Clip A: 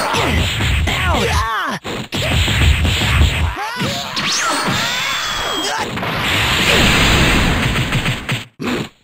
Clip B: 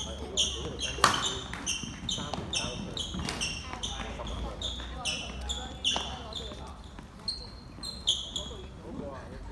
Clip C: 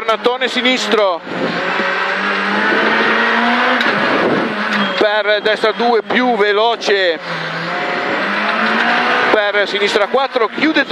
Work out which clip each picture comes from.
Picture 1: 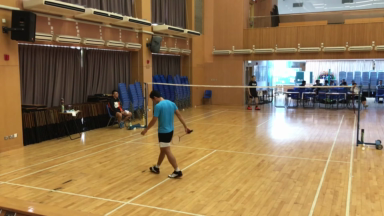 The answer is B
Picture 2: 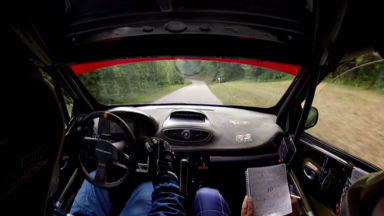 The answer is C